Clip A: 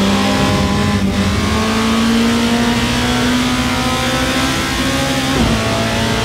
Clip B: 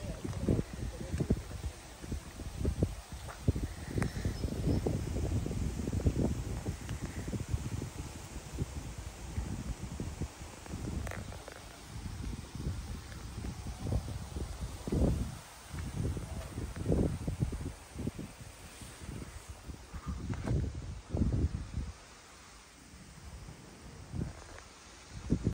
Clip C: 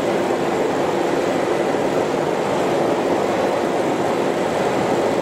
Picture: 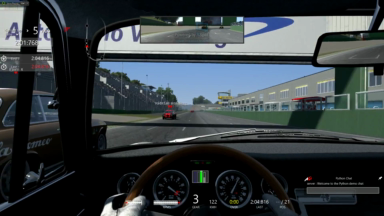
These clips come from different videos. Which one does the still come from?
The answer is A